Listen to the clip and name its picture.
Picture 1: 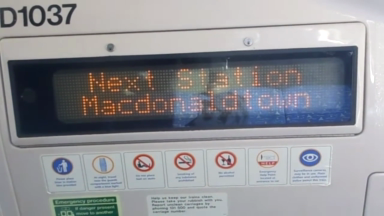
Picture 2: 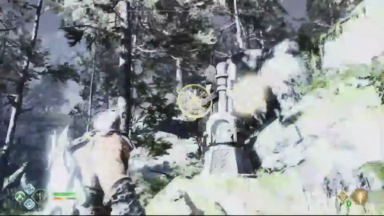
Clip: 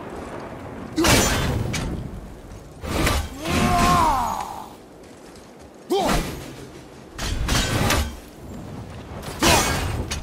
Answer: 2